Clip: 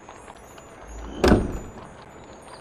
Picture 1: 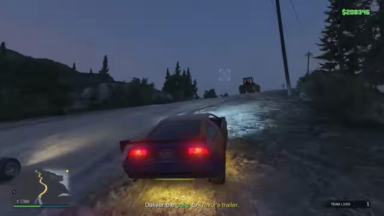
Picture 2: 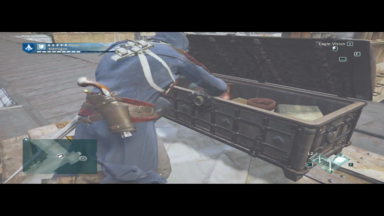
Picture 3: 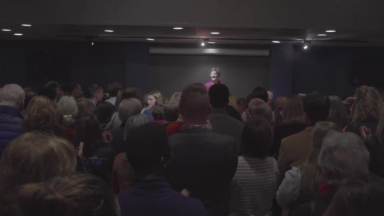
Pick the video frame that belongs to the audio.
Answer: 2